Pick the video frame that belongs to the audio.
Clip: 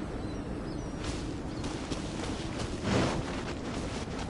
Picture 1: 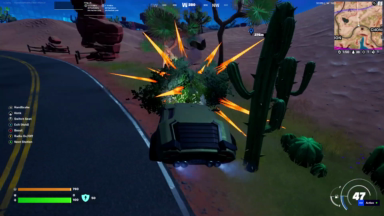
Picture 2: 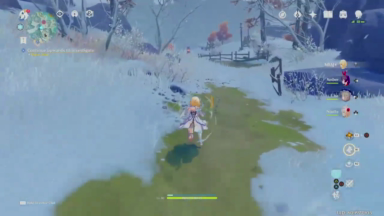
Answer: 2